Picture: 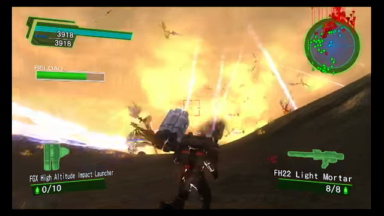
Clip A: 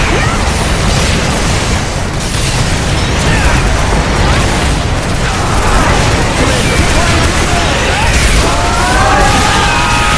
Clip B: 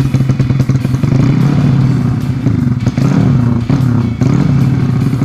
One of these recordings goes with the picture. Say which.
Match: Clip A